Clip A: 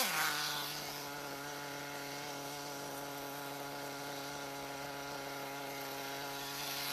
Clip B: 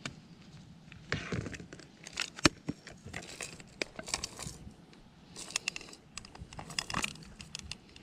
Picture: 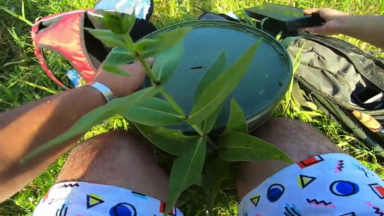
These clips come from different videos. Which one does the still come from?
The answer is B